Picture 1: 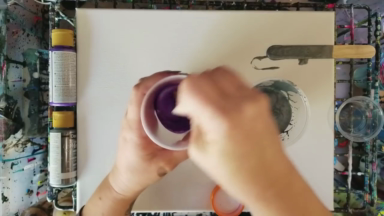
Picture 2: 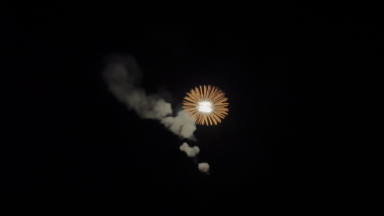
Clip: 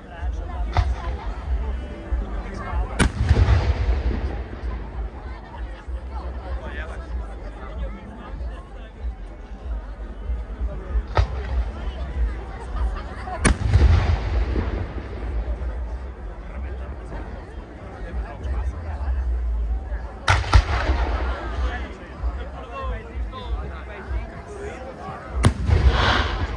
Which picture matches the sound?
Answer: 2